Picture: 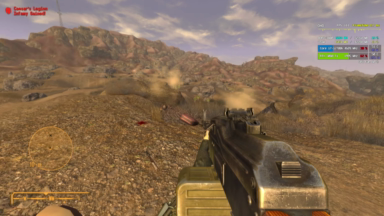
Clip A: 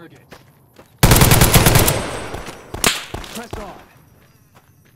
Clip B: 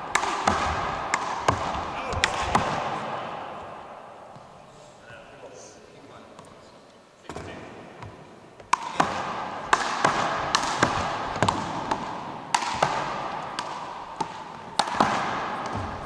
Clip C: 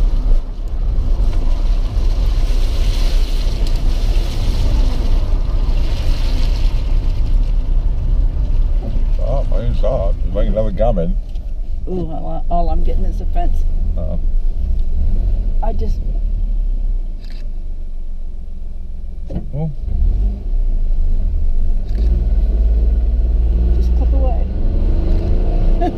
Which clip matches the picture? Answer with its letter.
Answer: A